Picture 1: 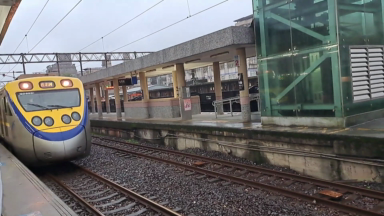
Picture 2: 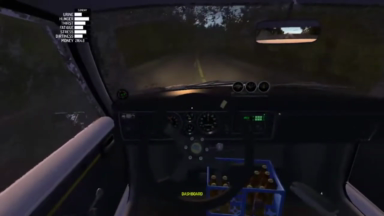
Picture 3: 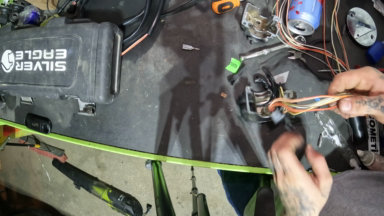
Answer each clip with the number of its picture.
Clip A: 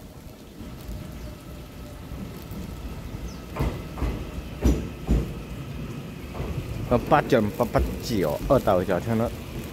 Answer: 1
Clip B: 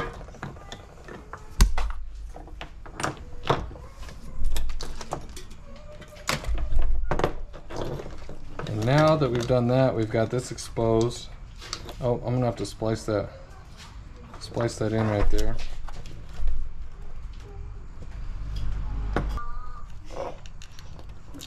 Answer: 3